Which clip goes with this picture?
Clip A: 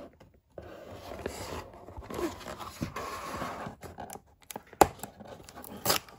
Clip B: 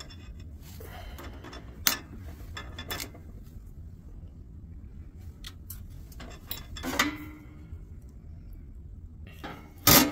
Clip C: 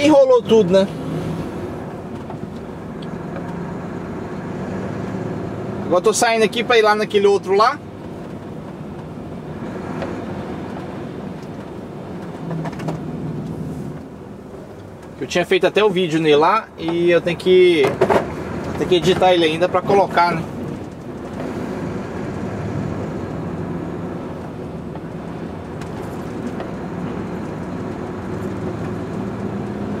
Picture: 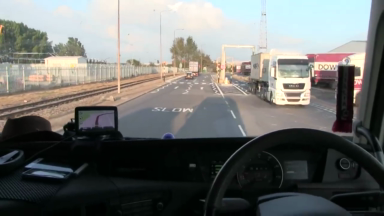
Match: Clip C